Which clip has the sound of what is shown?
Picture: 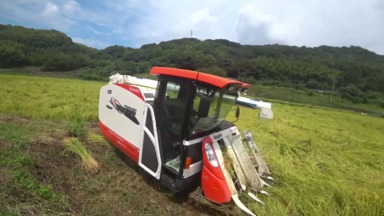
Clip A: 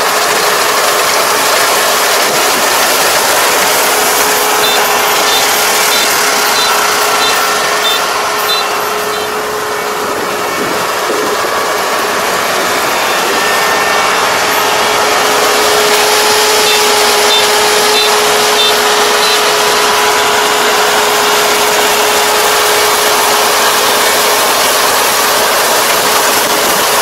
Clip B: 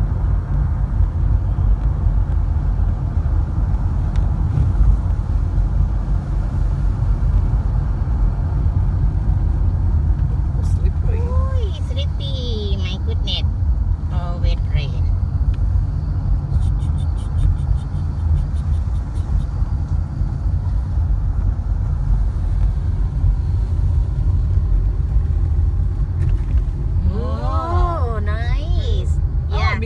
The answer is A